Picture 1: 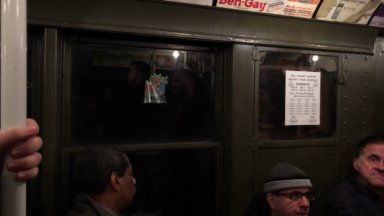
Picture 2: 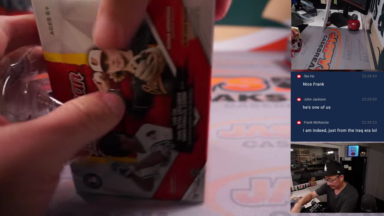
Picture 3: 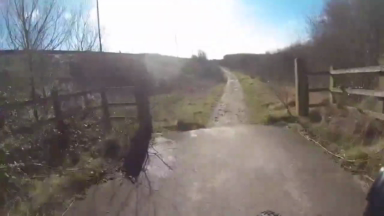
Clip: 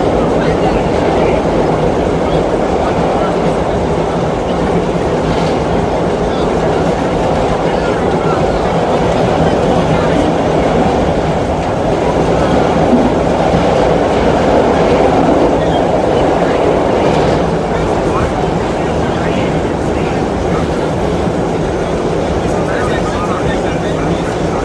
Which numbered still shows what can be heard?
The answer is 1